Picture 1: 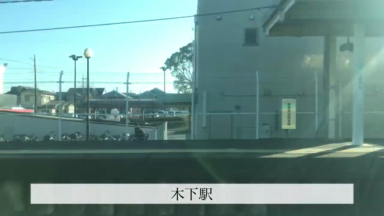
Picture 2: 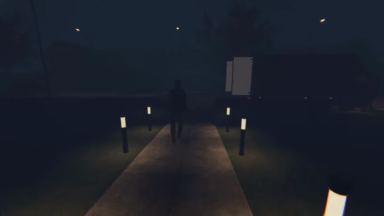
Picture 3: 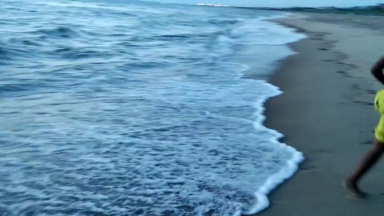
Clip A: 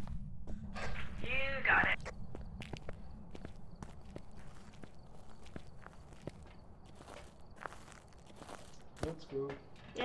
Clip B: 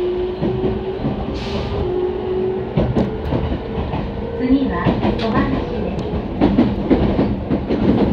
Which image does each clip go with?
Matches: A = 2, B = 1